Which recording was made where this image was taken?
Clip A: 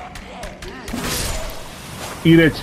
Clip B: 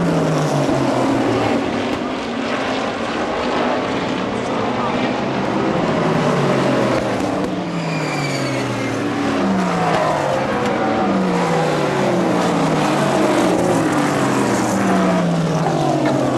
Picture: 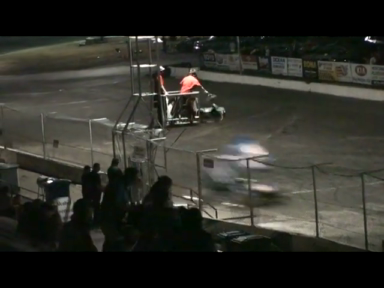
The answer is B